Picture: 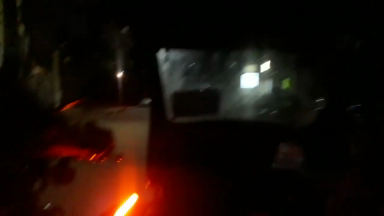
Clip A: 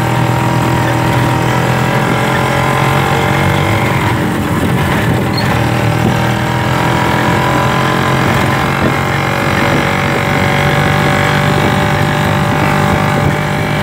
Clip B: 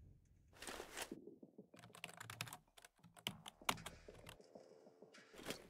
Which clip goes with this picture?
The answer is A